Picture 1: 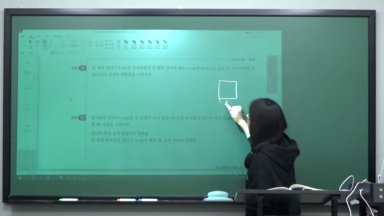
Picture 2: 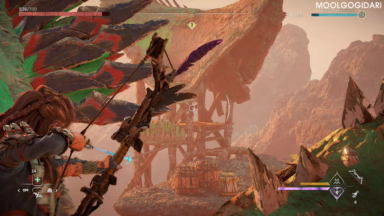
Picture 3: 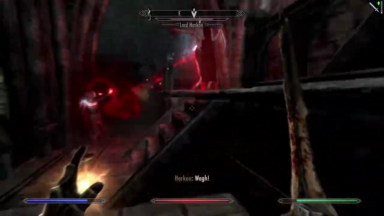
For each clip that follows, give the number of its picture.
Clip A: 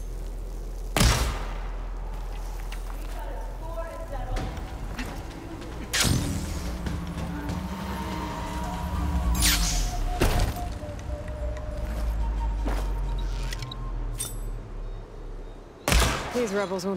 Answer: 2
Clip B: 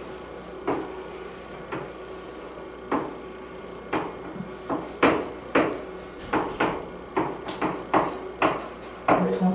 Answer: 1